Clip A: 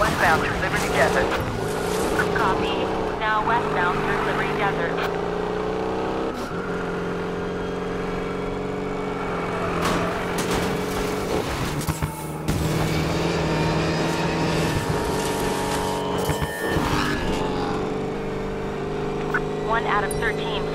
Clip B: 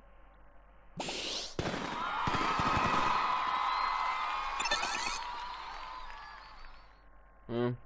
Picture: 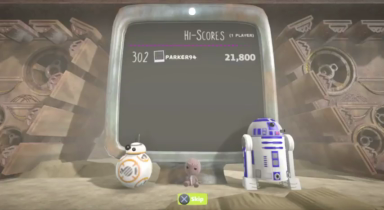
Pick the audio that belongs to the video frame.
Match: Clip B